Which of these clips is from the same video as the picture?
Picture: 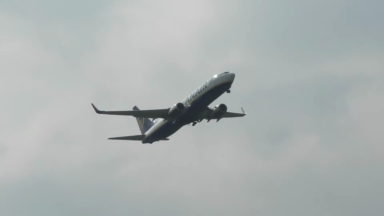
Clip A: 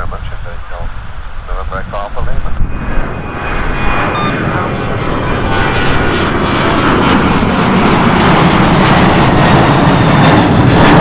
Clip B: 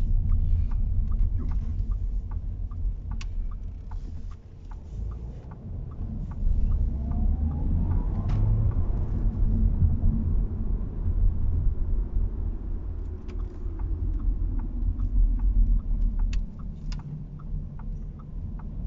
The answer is A